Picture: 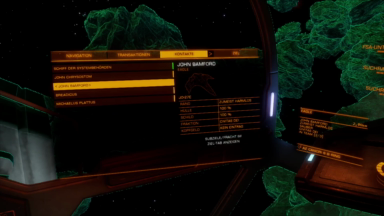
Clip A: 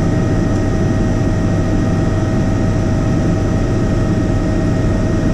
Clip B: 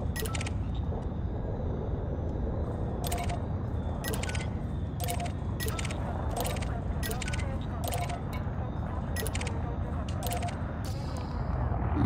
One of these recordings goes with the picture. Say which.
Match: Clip B